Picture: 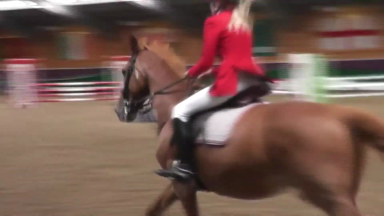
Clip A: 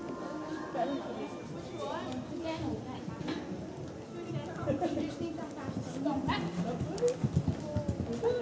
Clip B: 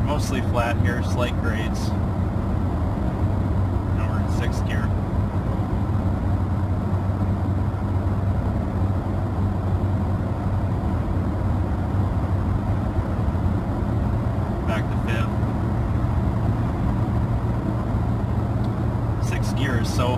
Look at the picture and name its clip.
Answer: A